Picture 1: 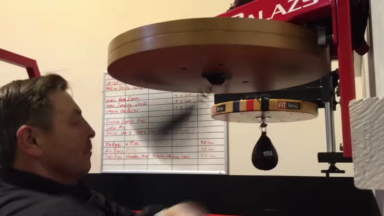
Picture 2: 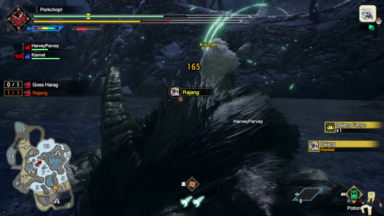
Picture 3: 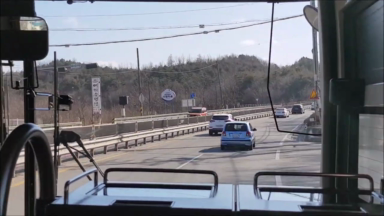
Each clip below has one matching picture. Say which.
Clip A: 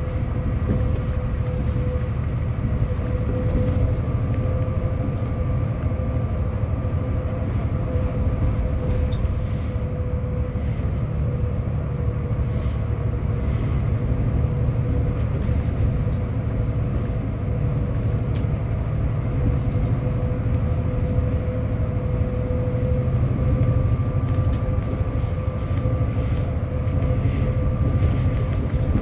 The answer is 3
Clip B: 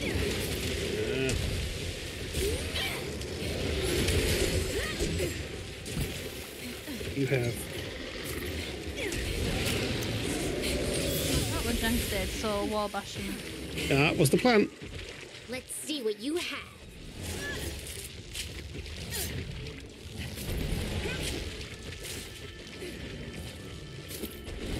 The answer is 2